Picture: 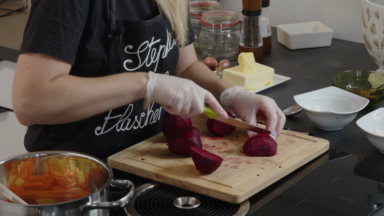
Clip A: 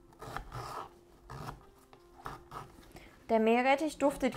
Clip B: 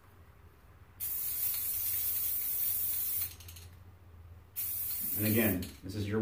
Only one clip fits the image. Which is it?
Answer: A